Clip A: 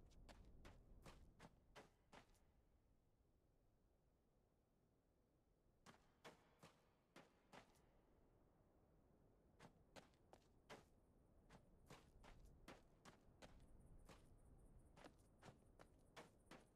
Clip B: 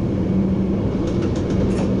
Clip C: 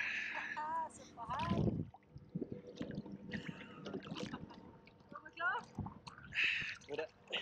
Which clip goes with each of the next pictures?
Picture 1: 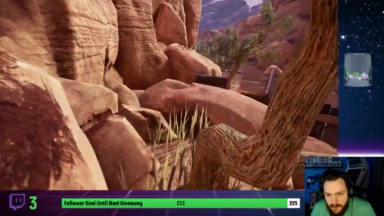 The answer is A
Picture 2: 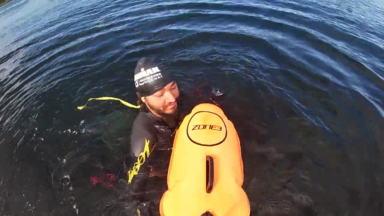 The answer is C